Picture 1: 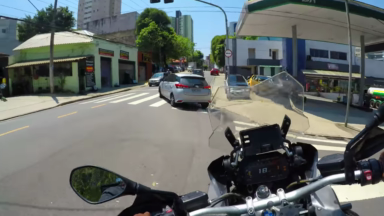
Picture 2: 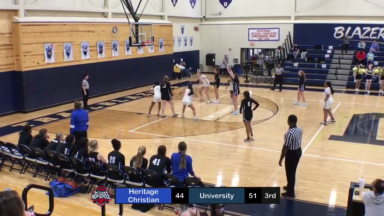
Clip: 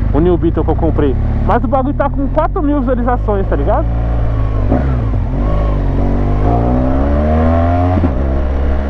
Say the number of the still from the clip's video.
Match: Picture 1